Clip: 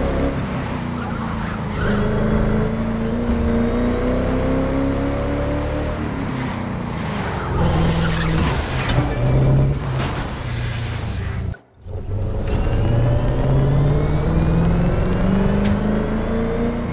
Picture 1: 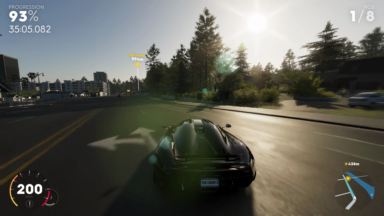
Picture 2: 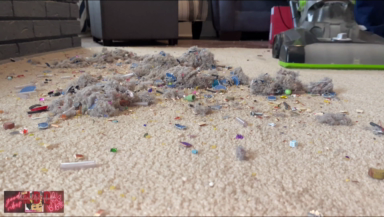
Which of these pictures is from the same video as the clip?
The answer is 1